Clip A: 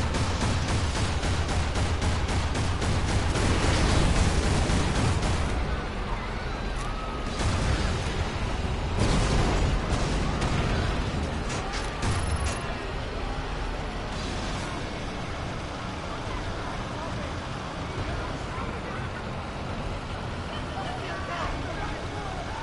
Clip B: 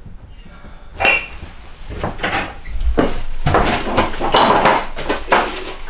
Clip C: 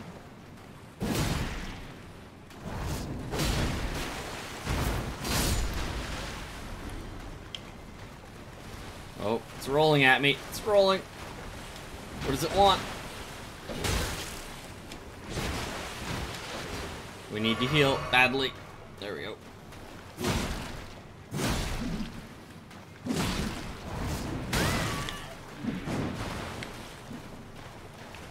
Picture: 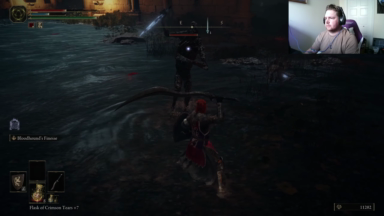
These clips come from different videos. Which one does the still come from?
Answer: C